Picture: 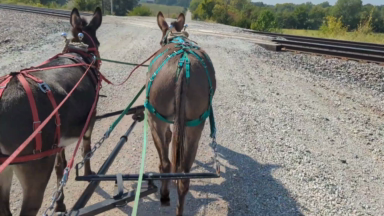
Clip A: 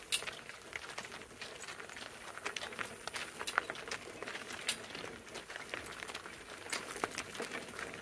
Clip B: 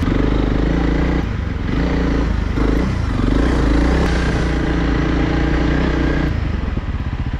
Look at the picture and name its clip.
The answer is A